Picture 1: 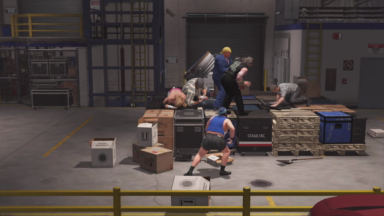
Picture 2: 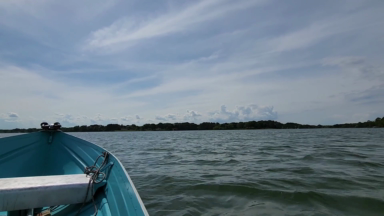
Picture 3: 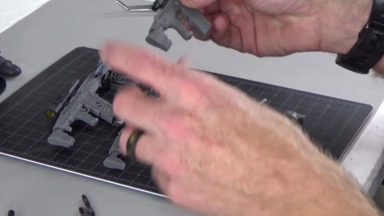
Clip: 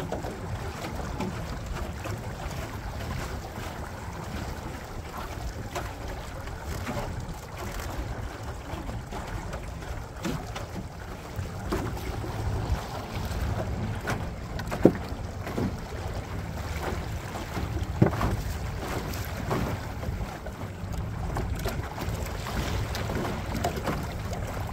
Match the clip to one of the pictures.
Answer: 2